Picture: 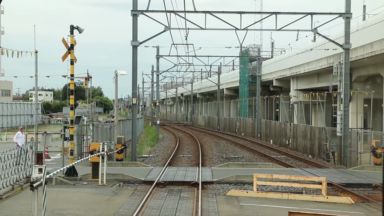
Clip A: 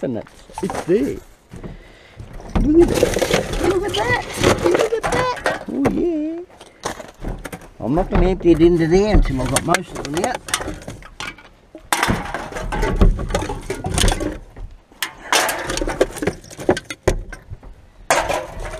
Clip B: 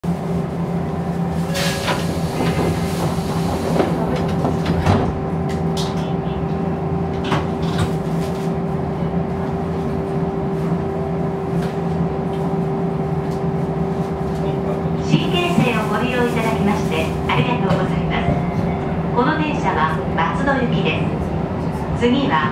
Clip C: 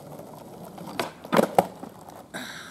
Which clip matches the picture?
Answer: B